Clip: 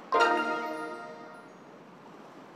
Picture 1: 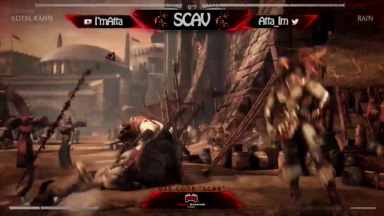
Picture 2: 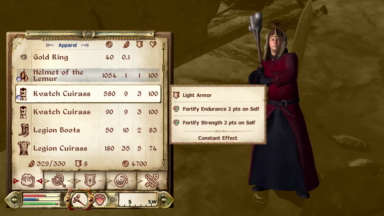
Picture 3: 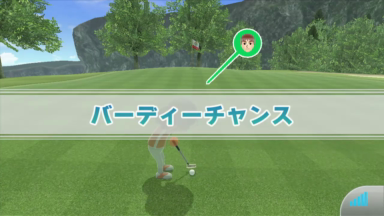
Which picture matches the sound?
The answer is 3